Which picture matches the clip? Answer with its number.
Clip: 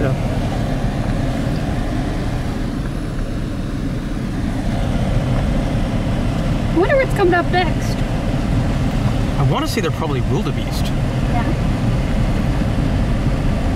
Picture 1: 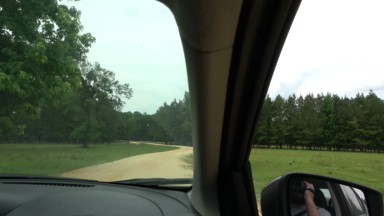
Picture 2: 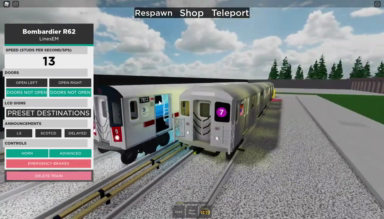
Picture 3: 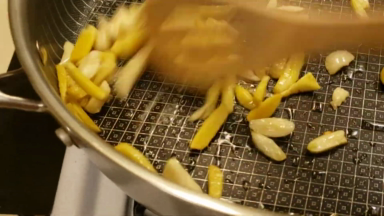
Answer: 1